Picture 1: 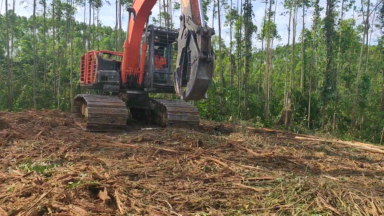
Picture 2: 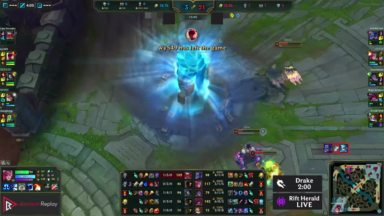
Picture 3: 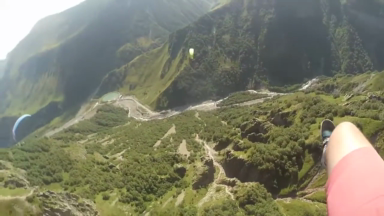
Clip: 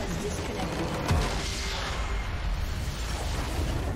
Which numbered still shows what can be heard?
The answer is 2